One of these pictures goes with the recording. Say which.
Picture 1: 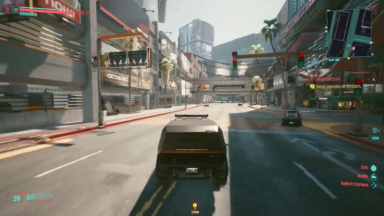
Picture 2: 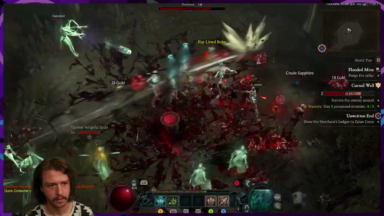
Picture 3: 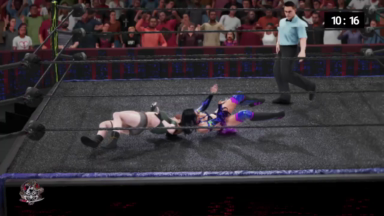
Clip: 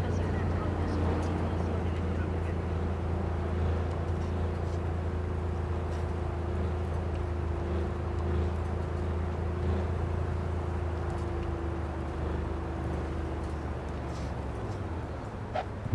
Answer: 1